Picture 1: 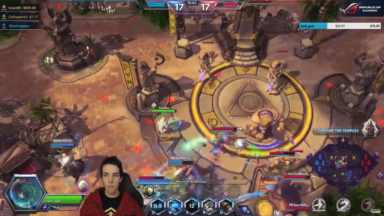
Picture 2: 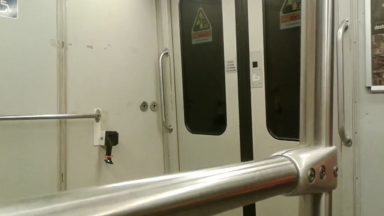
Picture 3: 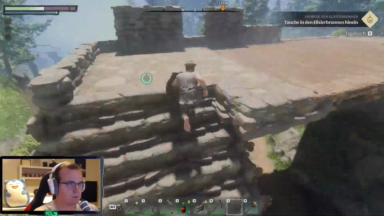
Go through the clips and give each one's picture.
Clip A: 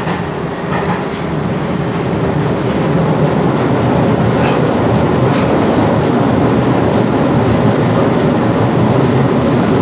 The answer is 2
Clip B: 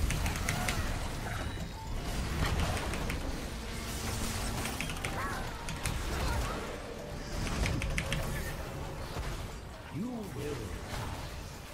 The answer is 1